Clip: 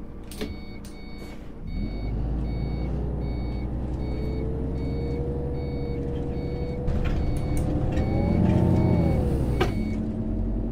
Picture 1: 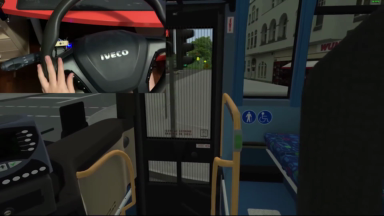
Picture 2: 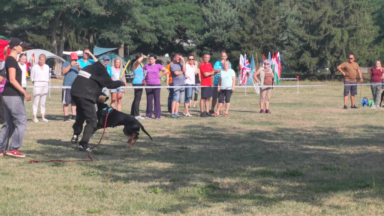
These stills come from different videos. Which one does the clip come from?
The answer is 1